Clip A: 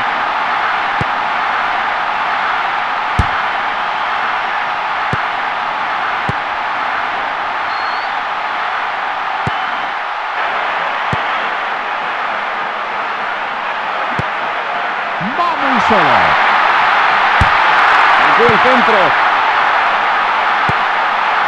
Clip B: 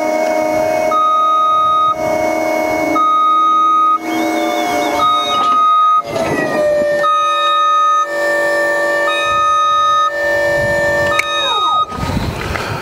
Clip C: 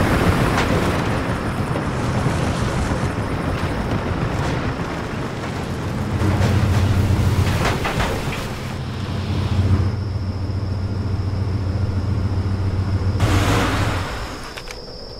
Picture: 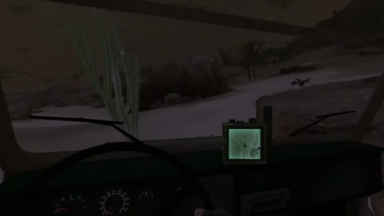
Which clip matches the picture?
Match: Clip C